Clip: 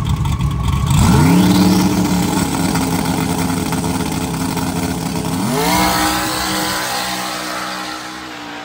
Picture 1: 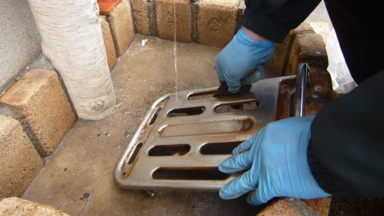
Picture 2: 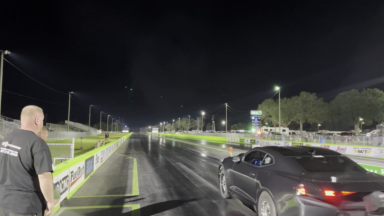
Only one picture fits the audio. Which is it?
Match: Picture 2